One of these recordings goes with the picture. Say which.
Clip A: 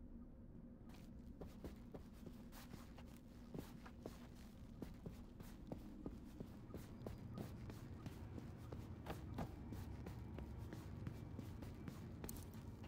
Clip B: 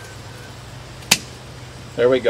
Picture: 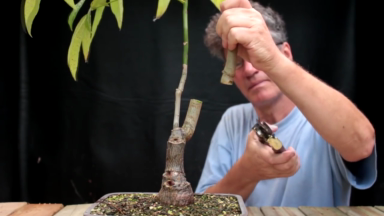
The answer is B